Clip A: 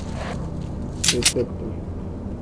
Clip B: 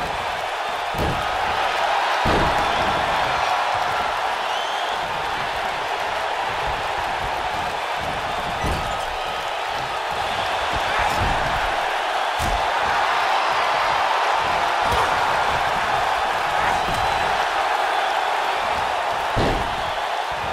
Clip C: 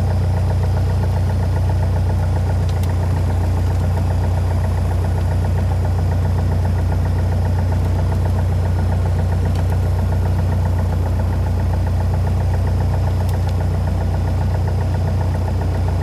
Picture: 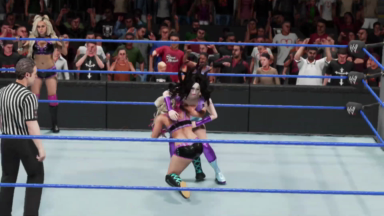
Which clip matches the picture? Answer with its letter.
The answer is B